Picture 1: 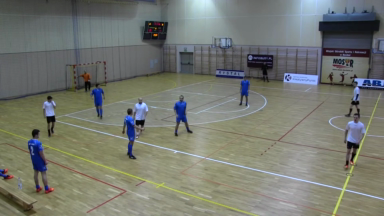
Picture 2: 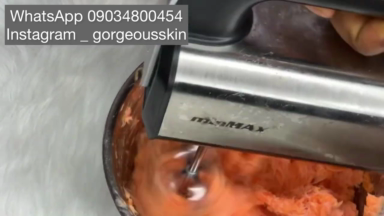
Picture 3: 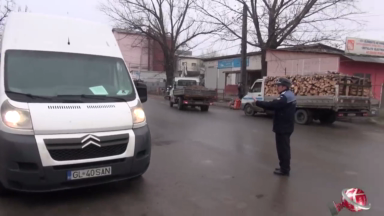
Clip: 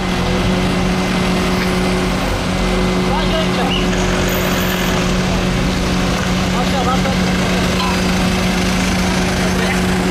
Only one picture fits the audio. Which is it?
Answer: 3